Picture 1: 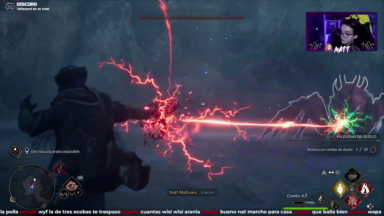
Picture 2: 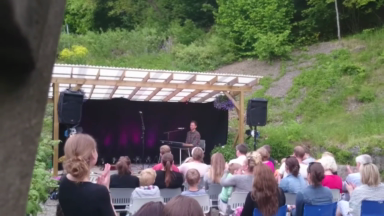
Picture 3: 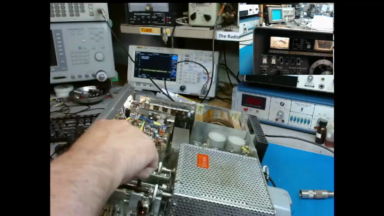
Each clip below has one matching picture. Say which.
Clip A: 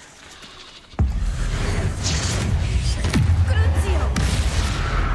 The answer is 1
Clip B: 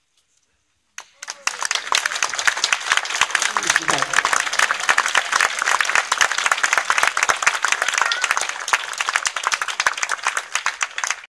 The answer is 2